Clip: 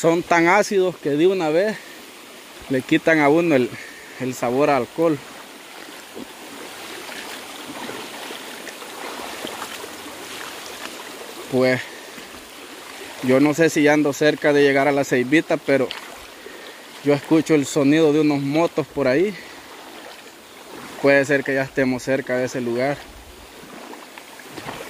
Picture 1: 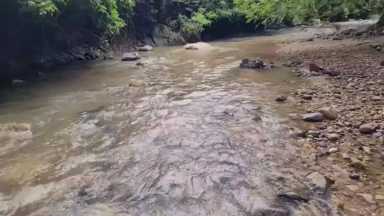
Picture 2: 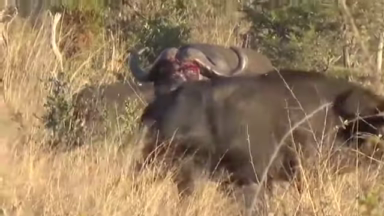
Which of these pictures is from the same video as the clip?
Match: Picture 1